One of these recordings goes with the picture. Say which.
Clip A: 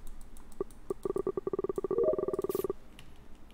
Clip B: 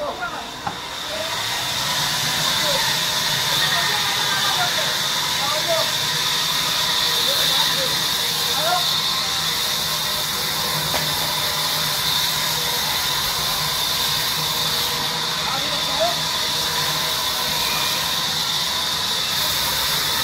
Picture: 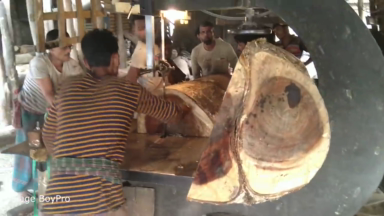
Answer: B